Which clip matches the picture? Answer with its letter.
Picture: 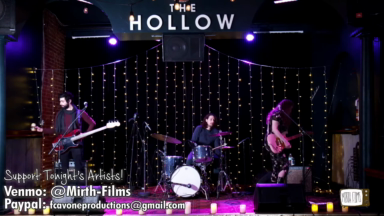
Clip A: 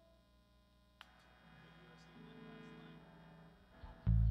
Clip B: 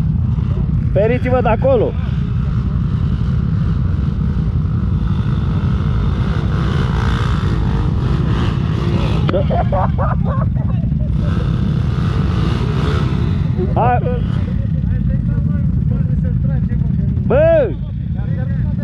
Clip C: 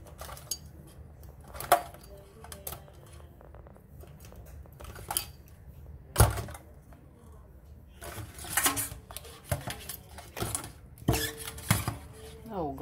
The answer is A